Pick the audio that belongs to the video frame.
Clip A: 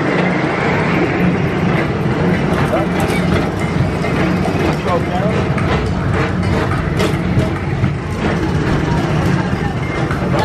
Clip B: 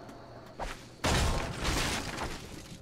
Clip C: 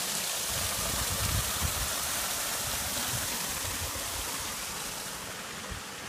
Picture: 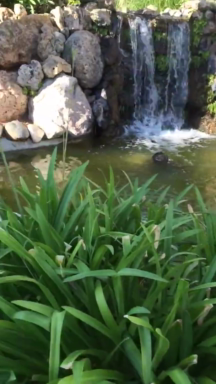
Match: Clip C